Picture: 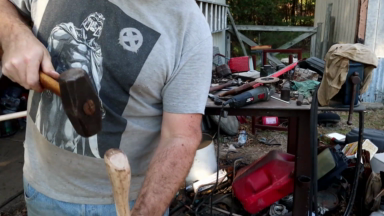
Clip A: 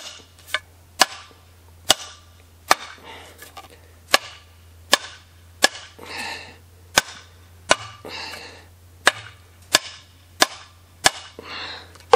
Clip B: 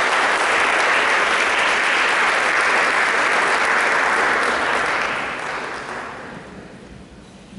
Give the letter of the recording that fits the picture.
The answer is A